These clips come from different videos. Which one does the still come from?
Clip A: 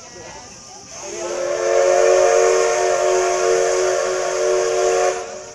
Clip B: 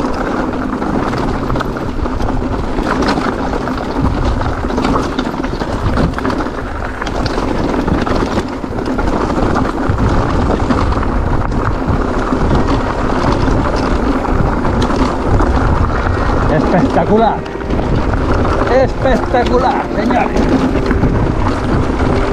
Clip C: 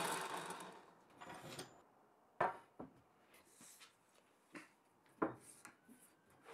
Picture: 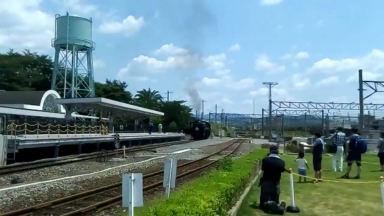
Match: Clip A